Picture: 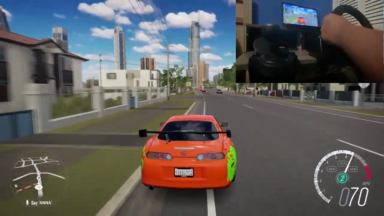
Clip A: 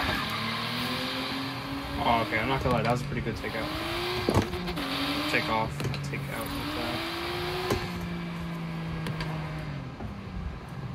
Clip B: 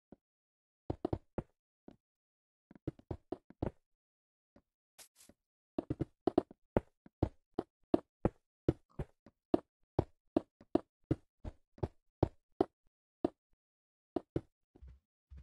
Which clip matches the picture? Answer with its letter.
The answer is A